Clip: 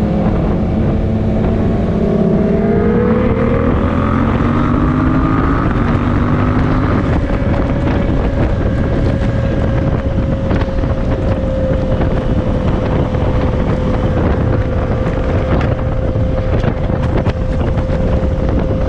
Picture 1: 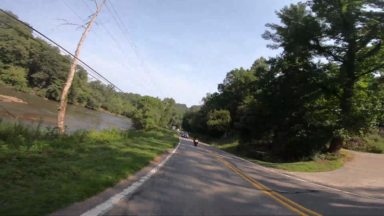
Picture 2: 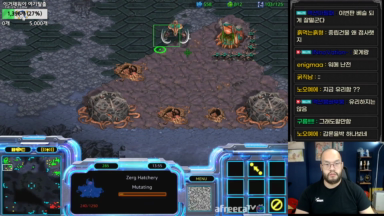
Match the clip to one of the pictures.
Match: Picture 1